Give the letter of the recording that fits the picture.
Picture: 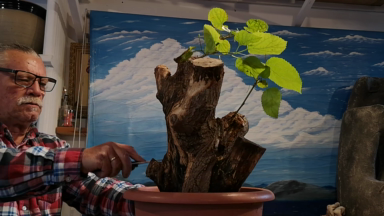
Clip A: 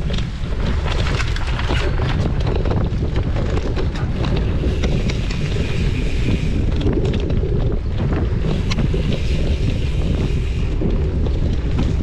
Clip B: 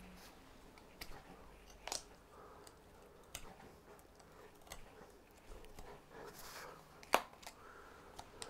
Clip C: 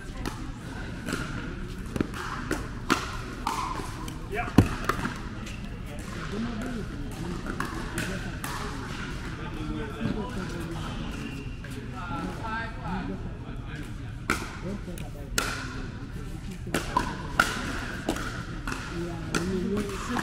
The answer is B